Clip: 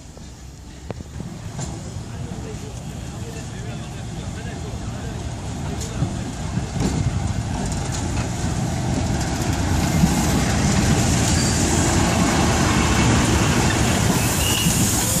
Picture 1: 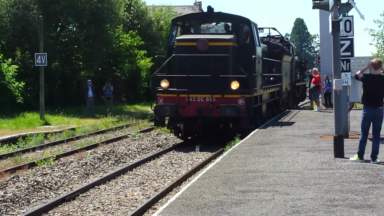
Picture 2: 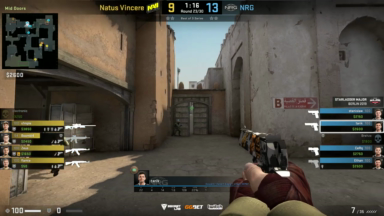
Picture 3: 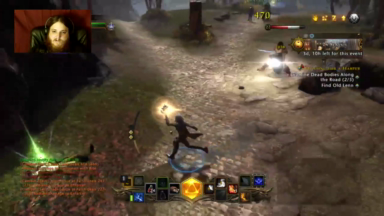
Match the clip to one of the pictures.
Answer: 1